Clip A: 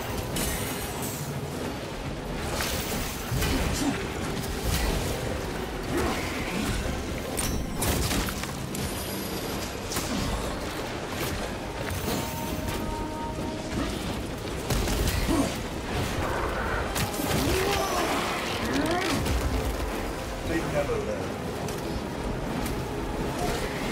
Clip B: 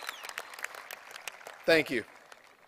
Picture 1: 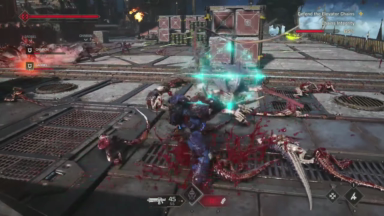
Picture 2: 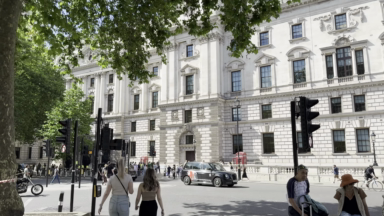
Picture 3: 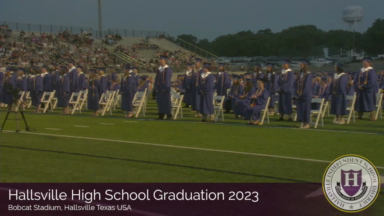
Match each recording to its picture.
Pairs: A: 1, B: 3